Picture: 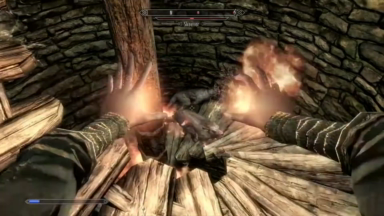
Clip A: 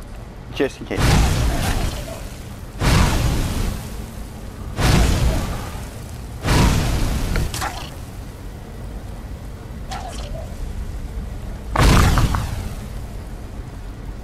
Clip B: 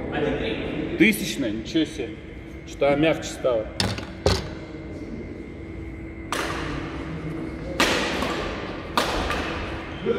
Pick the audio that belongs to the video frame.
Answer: A